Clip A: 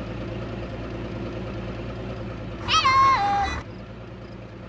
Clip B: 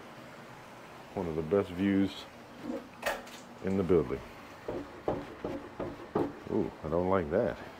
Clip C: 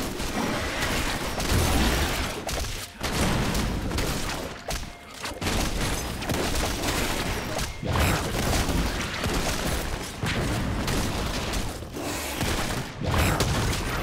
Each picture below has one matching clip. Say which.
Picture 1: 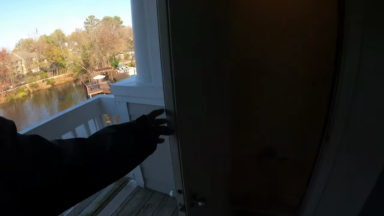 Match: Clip B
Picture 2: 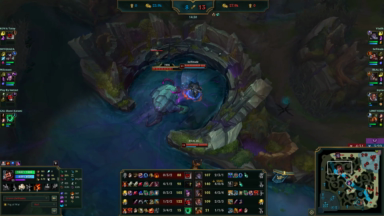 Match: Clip C